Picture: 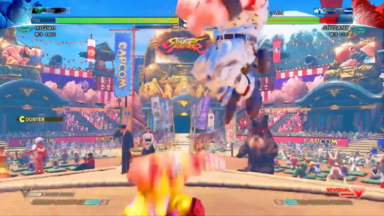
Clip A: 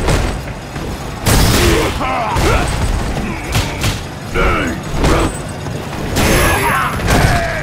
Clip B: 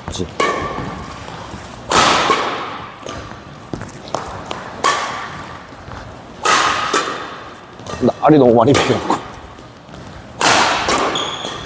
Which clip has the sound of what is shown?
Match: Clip A